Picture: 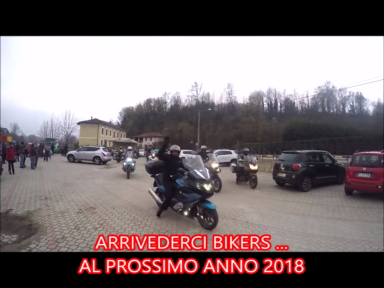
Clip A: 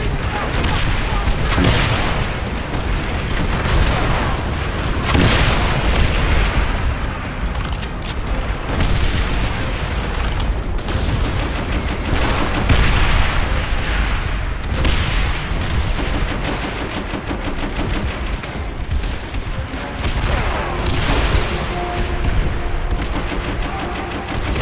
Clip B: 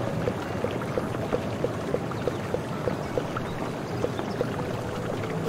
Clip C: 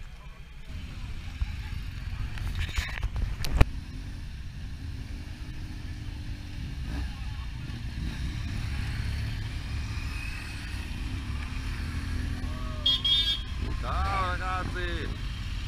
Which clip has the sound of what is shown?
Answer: C